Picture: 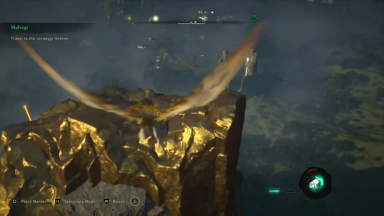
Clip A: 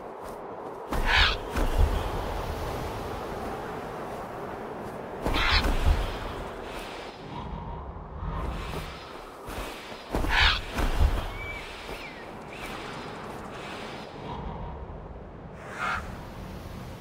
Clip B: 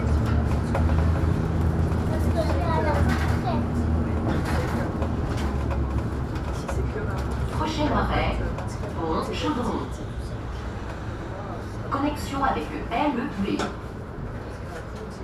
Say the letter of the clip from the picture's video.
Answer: A